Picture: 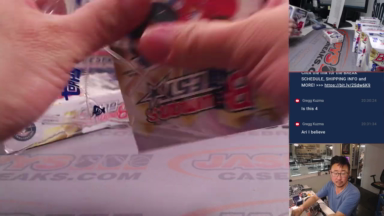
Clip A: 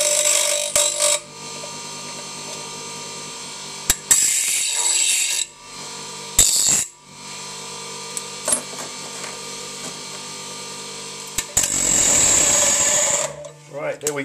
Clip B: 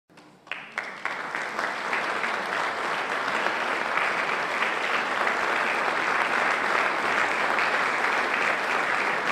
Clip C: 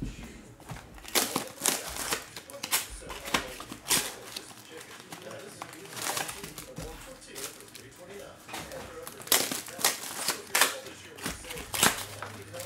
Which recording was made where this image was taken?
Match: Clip C